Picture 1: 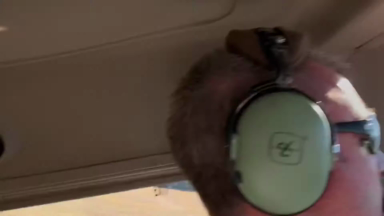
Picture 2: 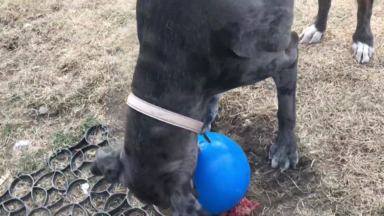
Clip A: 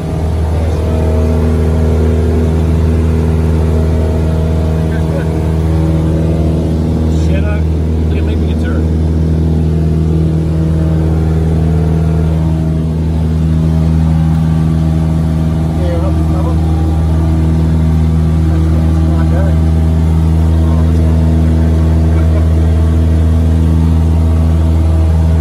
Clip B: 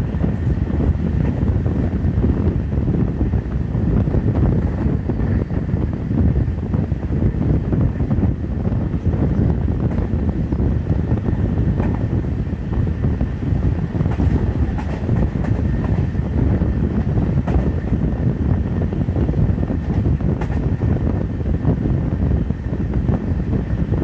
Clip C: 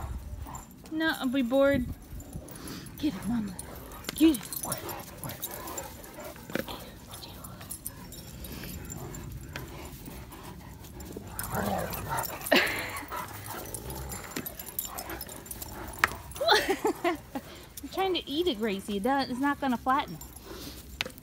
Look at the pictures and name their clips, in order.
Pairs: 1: A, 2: C